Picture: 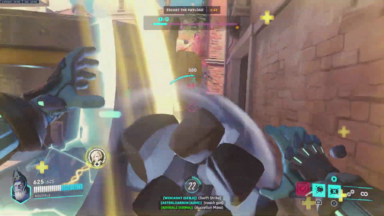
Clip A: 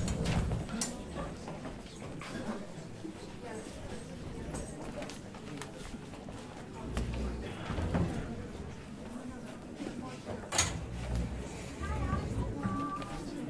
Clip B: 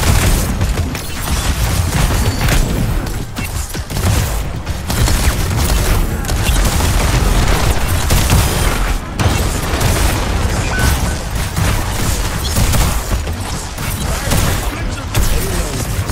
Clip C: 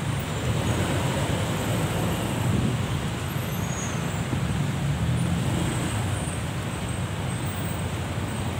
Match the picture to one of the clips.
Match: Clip B